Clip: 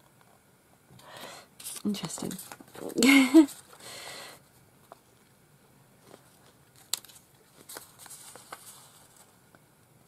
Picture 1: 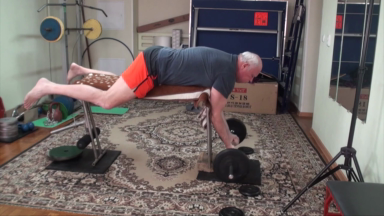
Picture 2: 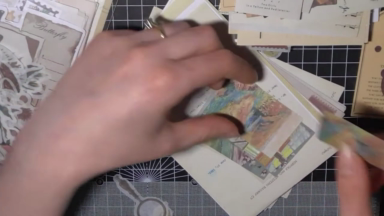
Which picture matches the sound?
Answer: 2